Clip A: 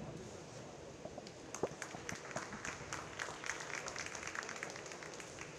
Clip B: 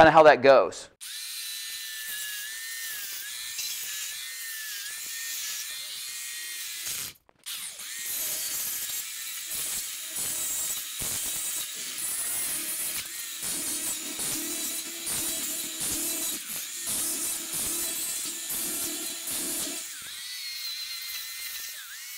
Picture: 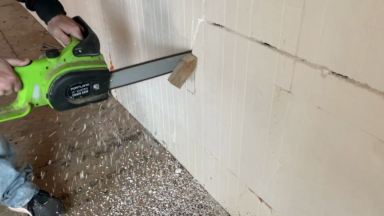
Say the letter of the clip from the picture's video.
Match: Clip B